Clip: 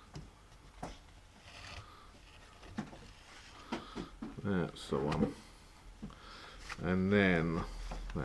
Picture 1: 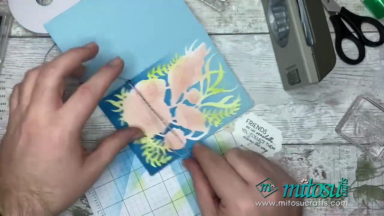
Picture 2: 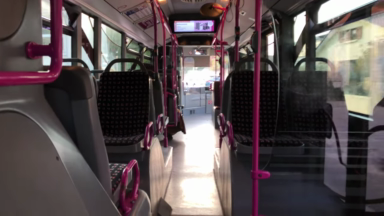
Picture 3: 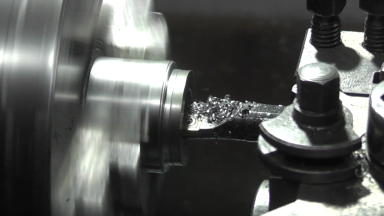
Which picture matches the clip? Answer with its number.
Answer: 1